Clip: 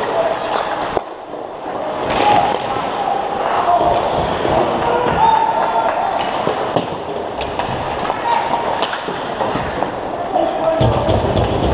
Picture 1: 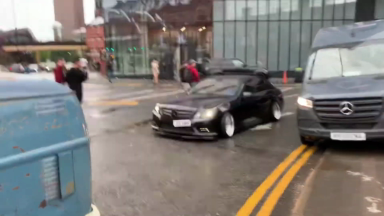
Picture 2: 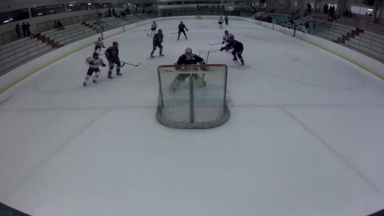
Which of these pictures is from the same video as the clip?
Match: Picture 2